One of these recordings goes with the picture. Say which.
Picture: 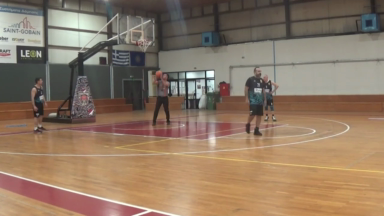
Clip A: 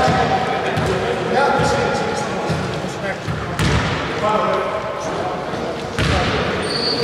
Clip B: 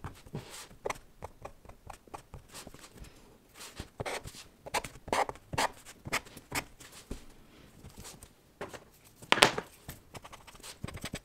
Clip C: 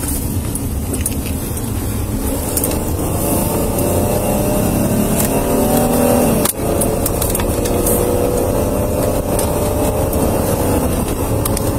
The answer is A